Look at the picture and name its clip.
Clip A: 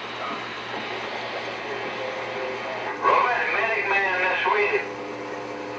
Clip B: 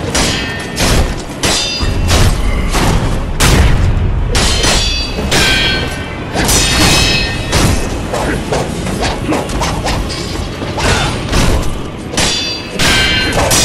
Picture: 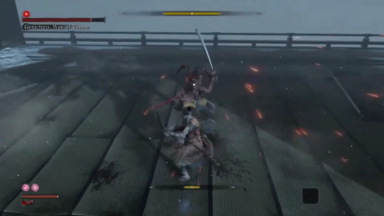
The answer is B